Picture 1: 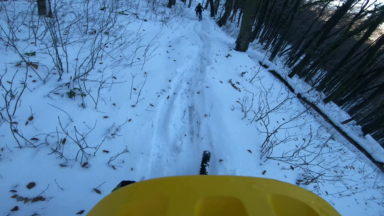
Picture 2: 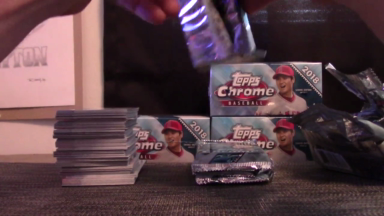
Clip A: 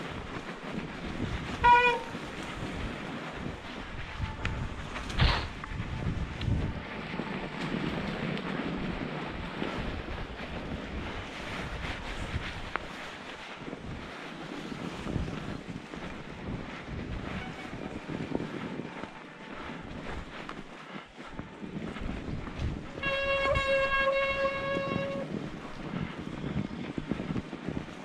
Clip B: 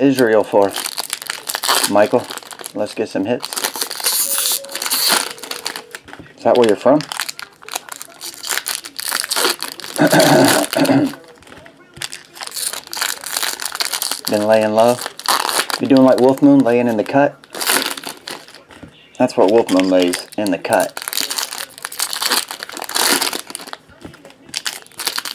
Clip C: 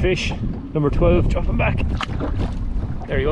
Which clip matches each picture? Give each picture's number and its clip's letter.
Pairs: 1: A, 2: B